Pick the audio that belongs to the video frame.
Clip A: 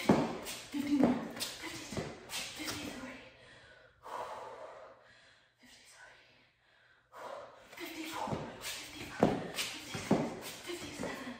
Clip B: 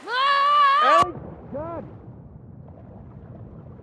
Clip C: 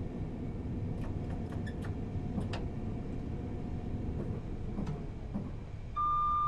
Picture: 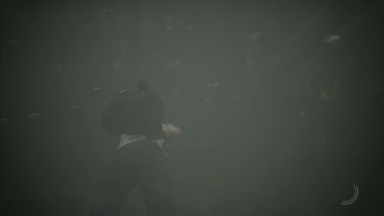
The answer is B